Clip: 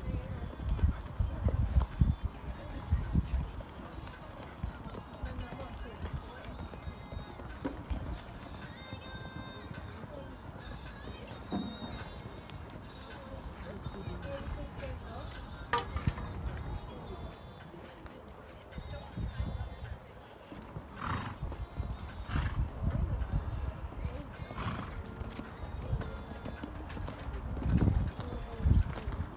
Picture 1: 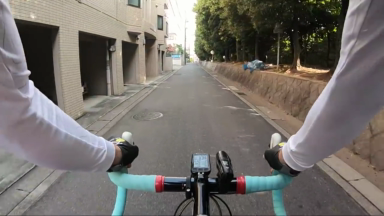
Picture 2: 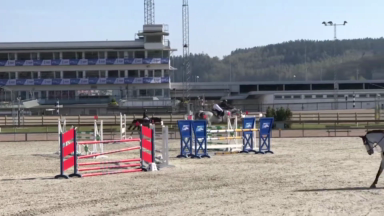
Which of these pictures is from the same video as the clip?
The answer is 2